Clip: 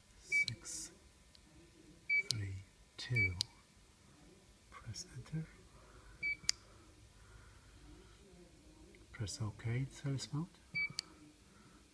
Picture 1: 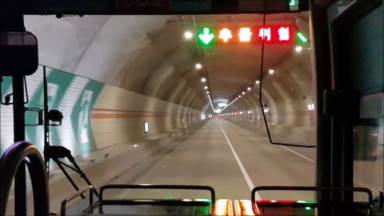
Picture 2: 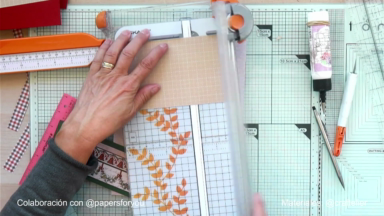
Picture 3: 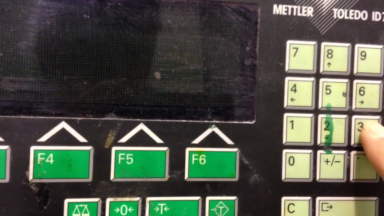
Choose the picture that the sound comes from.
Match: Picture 3